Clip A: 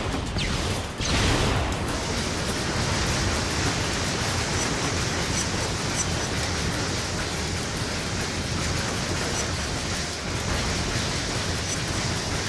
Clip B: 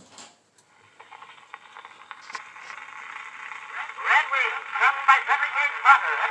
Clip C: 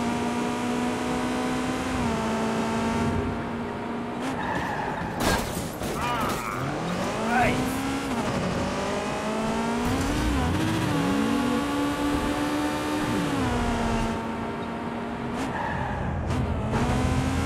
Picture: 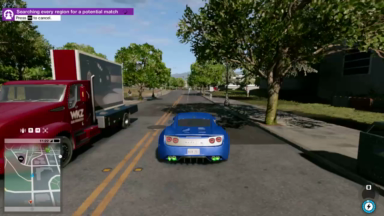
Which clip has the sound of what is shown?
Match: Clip C